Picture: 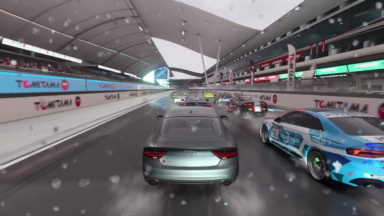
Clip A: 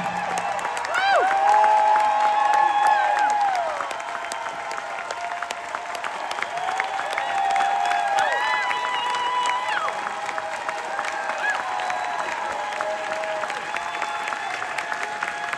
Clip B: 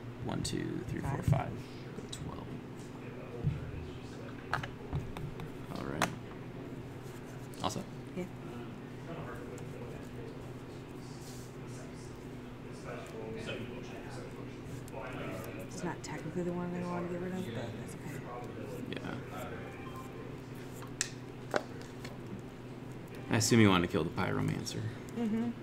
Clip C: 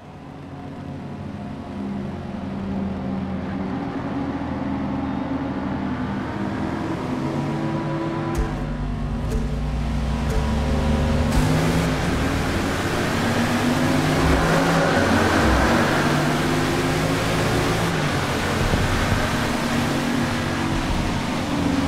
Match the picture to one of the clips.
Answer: C